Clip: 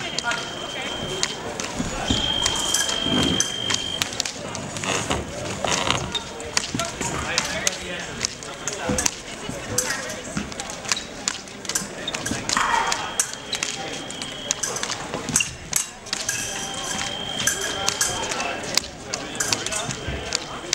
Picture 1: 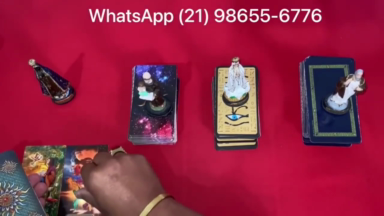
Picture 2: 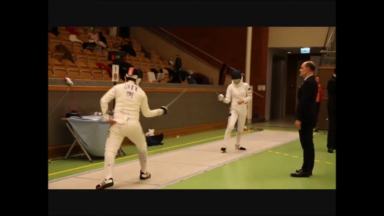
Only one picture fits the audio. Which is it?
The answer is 2